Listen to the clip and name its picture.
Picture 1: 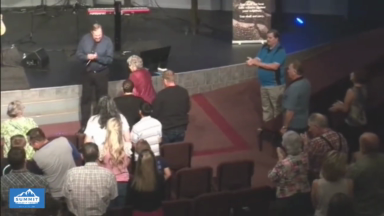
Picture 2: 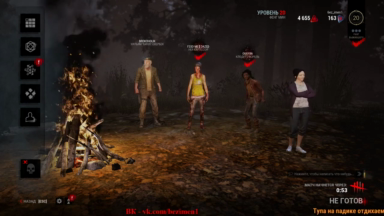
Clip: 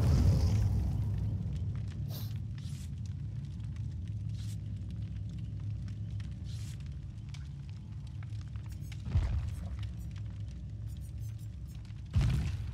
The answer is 2